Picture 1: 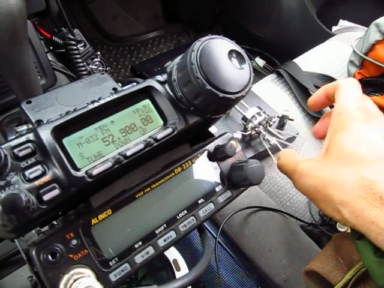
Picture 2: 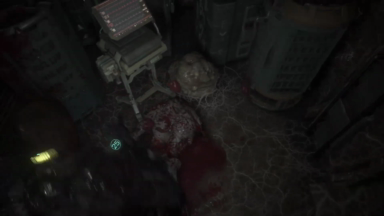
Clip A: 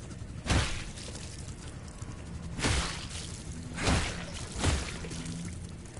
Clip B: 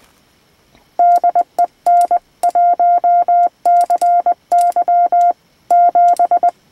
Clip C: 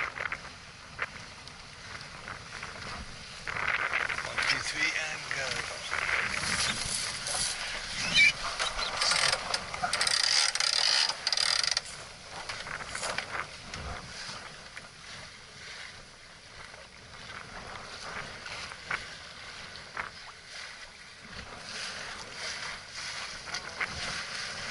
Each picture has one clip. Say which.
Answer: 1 B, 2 A